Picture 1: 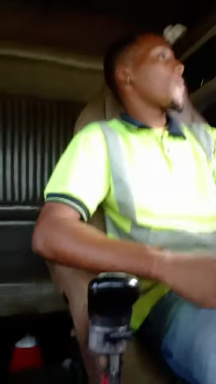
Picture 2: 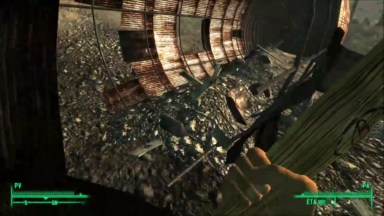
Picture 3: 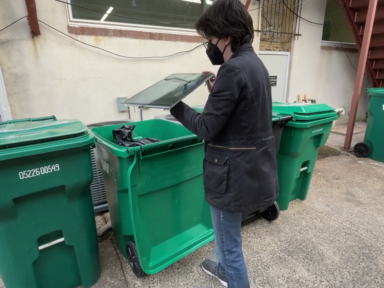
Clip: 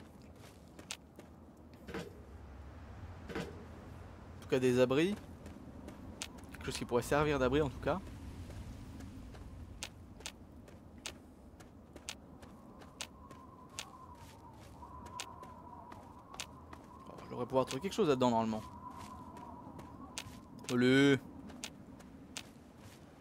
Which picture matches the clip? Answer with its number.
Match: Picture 2